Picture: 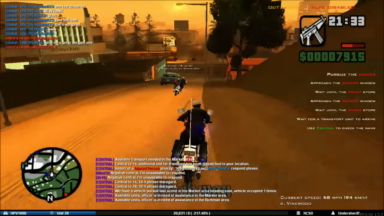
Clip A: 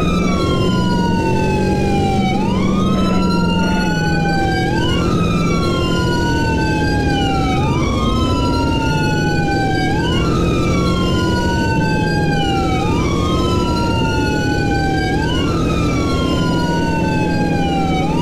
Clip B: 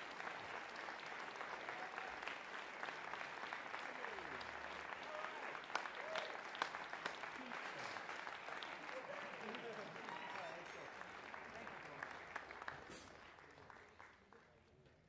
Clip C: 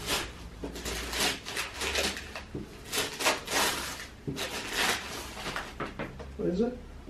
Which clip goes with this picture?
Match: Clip A